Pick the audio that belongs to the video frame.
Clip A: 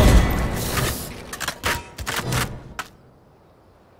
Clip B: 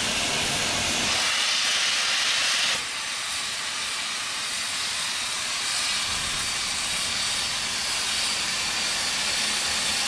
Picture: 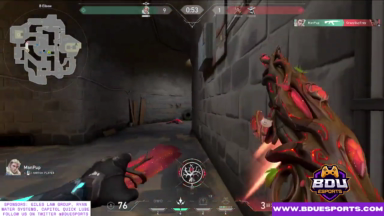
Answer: A